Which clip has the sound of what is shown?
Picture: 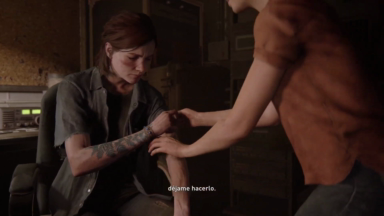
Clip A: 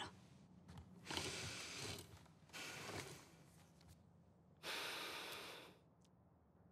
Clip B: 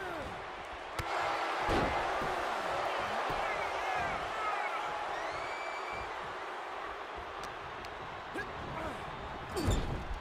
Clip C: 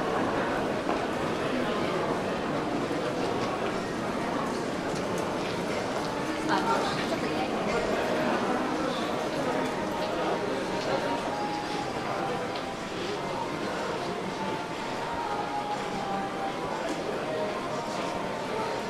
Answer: A